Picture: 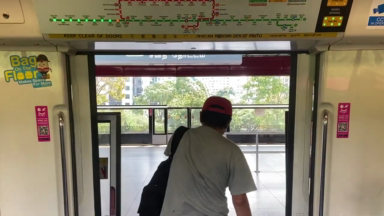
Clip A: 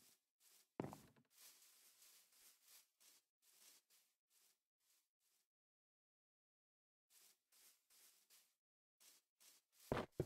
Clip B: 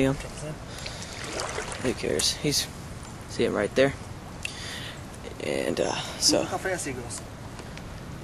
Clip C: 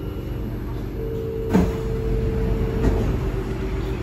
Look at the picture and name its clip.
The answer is C